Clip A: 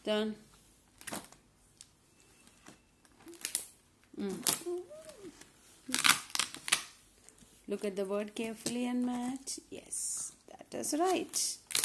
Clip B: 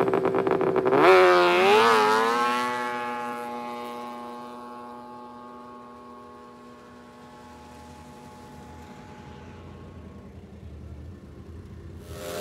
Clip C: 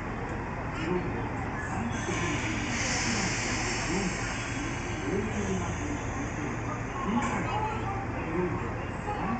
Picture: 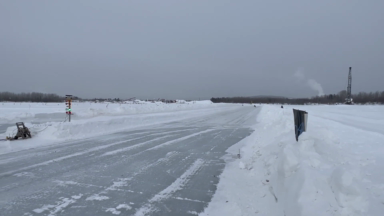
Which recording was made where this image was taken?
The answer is B